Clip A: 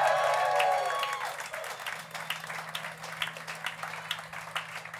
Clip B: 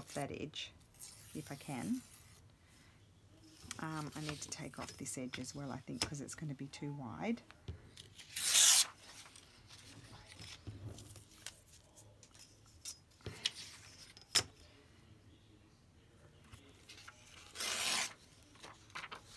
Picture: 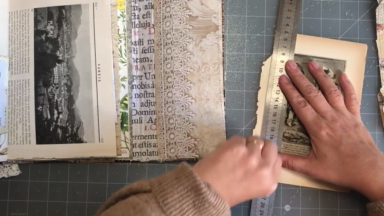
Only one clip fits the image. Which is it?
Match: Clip B